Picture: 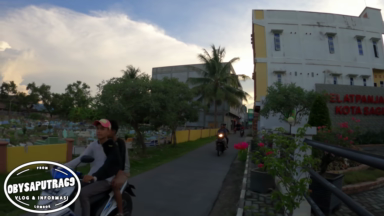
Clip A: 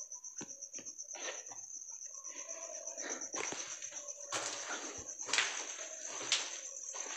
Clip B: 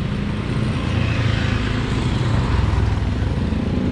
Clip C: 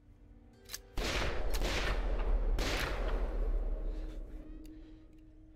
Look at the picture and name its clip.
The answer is B